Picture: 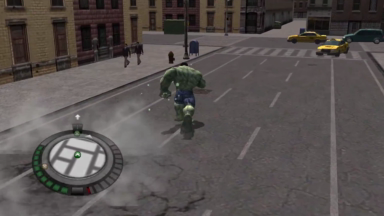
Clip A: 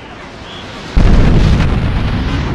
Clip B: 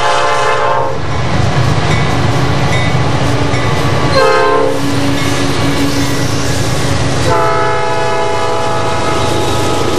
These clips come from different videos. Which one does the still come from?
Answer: A